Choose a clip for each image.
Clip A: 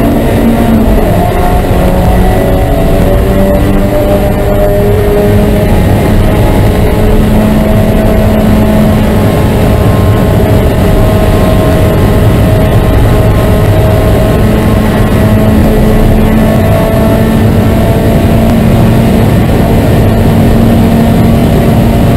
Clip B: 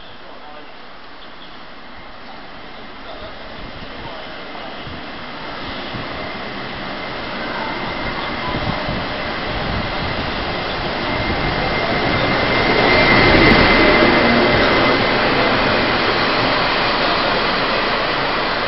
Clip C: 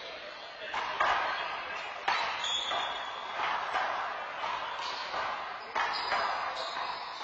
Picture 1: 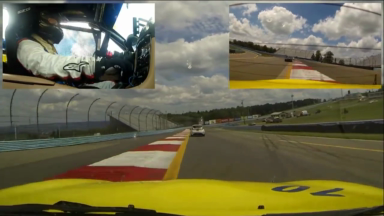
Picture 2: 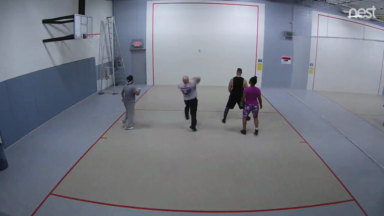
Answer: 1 A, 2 C